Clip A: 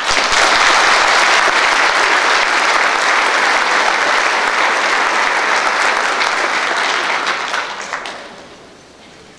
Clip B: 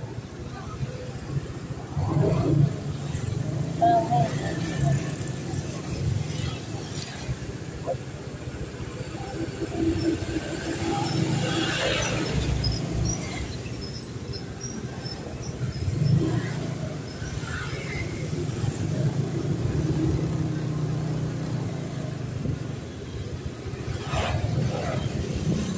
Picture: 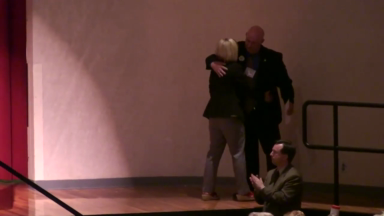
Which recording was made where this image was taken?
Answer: A